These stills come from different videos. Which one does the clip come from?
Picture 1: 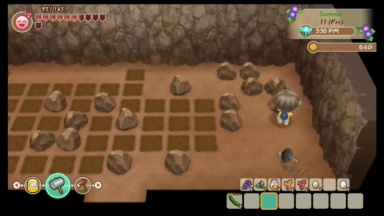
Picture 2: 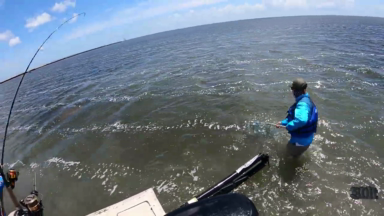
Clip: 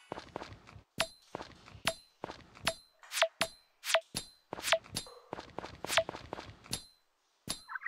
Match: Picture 1